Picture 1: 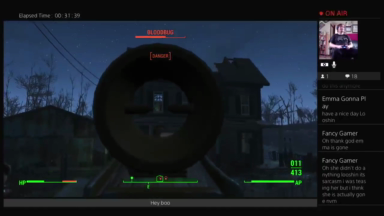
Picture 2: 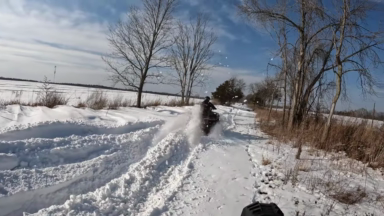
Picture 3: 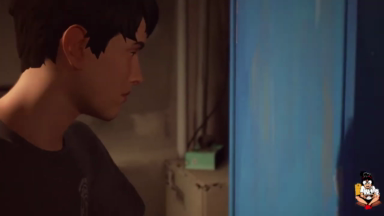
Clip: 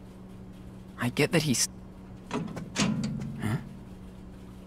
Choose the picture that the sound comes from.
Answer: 3